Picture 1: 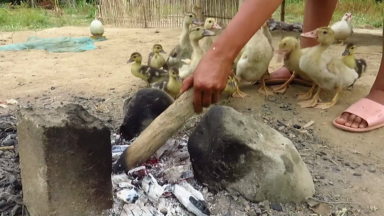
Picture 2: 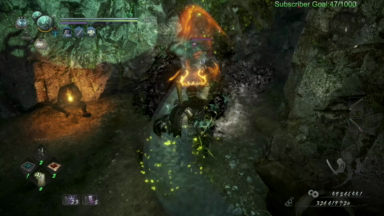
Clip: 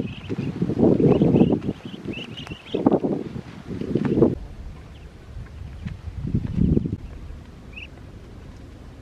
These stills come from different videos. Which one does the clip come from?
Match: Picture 1